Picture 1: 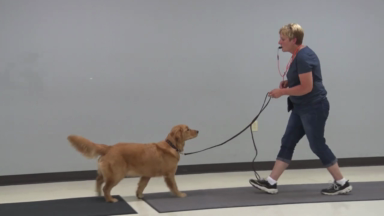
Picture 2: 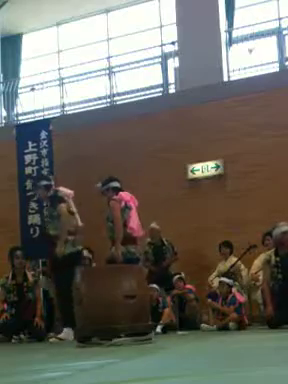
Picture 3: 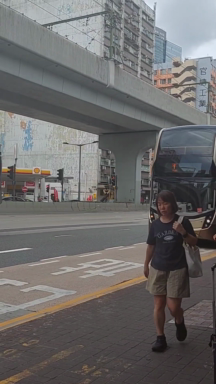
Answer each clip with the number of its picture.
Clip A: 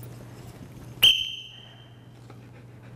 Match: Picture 1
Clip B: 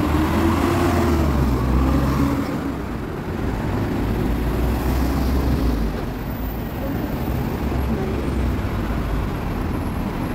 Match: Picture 3